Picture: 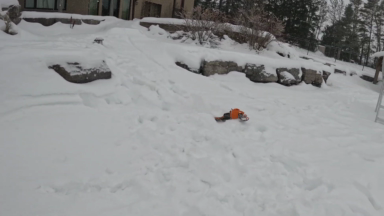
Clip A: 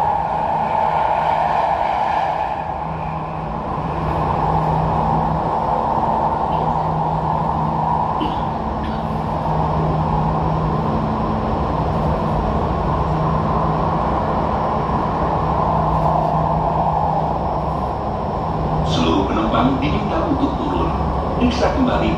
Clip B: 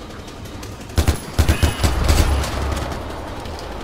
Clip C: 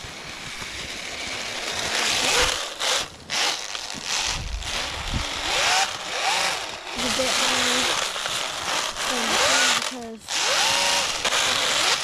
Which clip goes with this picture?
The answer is C